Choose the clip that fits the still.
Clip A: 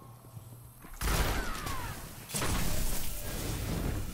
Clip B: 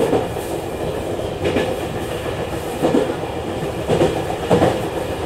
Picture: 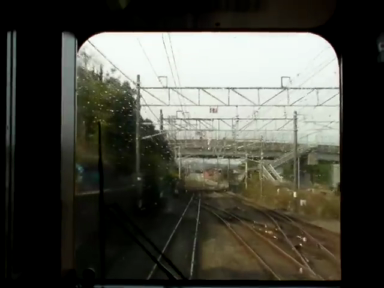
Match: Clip B